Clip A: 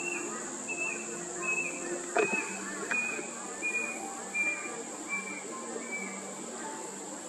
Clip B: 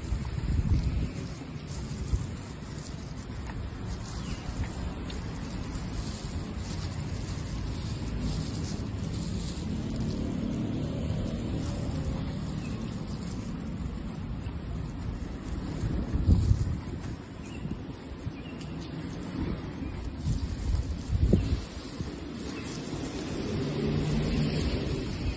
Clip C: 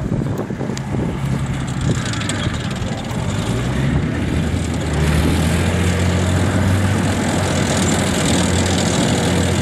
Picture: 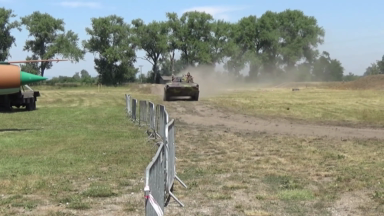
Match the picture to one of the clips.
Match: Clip C